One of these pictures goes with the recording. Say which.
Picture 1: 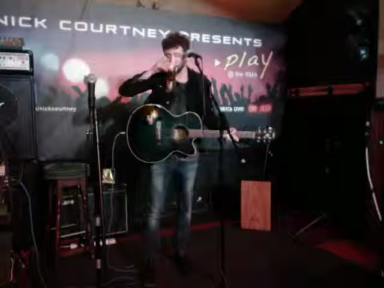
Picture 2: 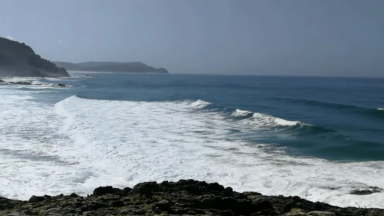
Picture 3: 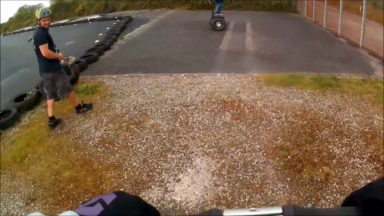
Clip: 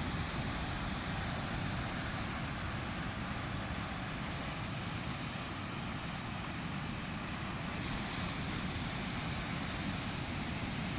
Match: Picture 2